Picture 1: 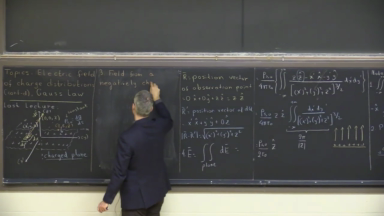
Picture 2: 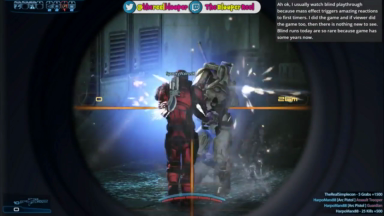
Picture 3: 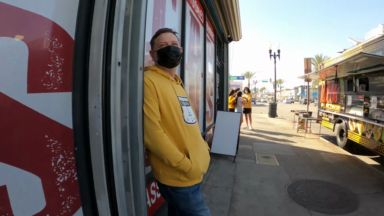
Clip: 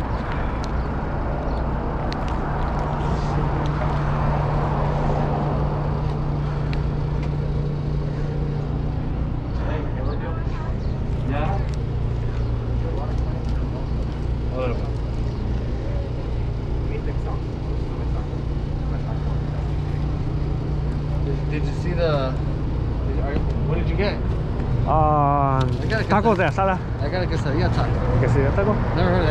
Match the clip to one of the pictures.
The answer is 3